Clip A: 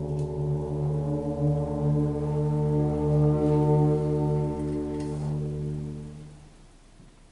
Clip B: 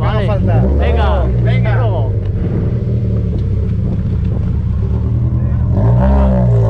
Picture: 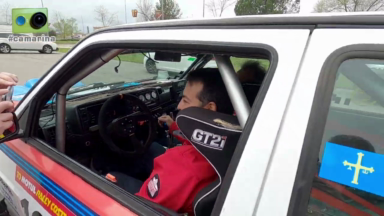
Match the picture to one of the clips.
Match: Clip B